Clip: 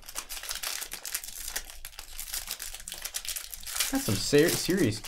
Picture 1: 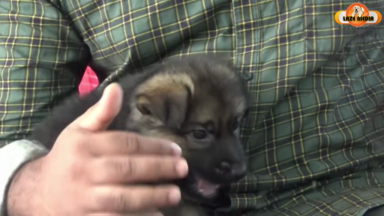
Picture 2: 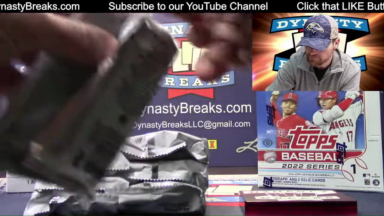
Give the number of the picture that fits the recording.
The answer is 2